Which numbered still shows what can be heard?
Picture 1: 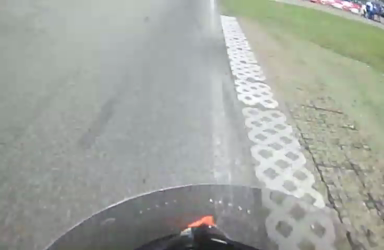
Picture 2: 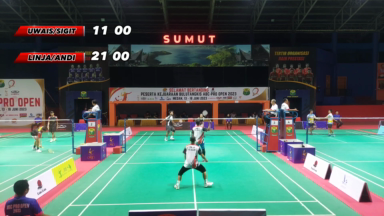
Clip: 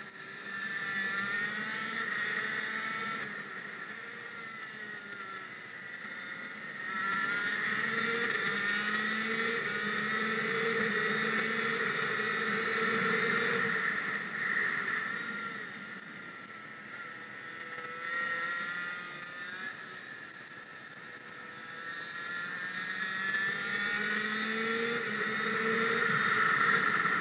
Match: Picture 1